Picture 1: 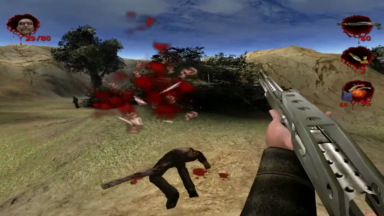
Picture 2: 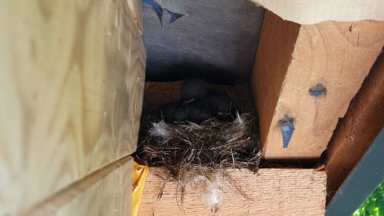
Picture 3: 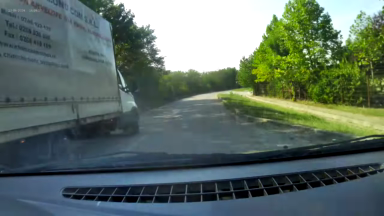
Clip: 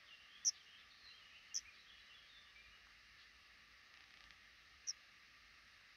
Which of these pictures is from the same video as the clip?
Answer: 2